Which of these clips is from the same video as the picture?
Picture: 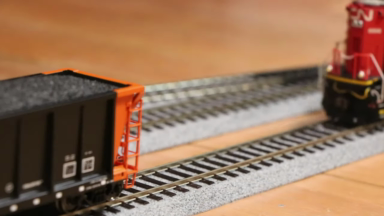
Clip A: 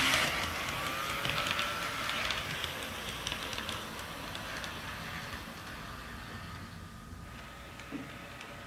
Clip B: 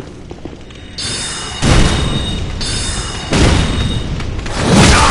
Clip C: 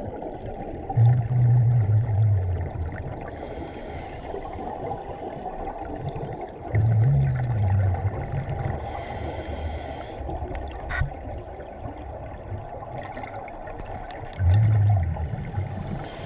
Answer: A